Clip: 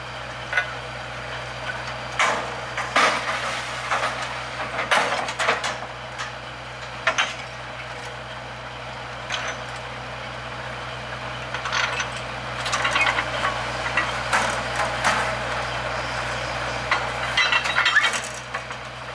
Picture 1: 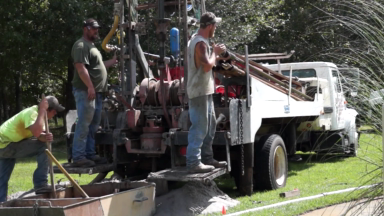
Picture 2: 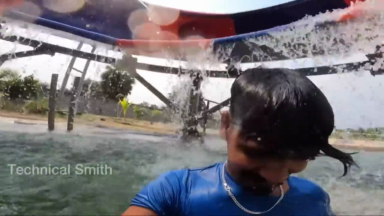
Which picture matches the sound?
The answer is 1